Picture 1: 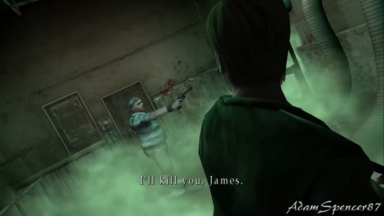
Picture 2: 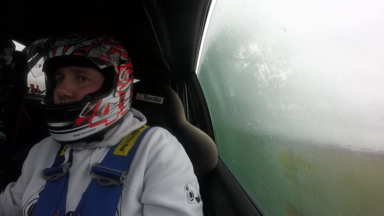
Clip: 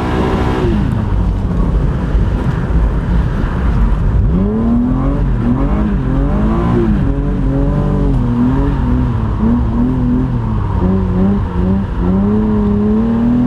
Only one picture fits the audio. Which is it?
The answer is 2